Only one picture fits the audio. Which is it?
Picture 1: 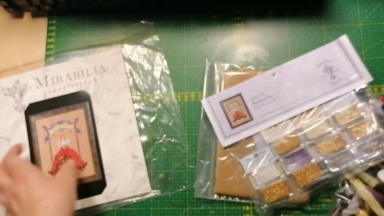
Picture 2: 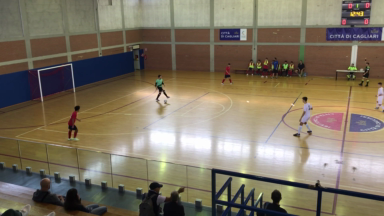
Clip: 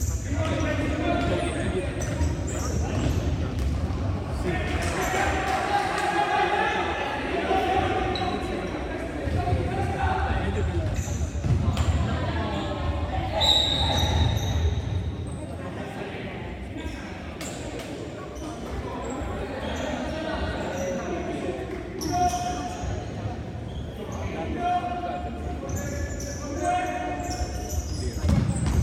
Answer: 2